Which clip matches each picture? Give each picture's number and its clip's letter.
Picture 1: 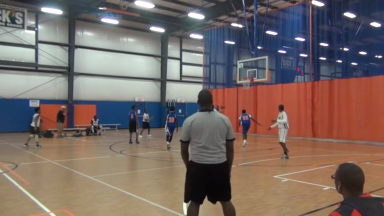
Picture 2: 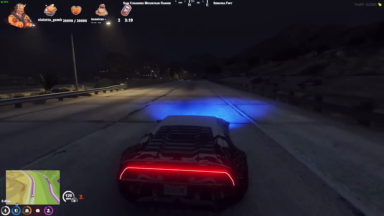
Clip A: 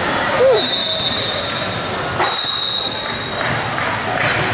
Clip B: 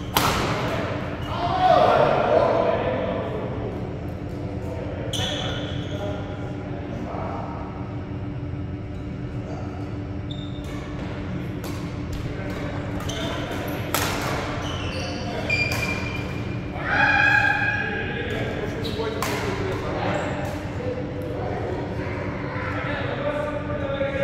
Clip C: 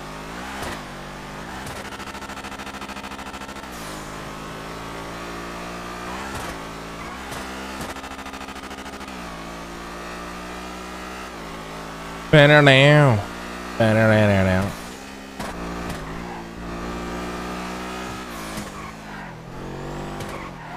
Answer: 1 A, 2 C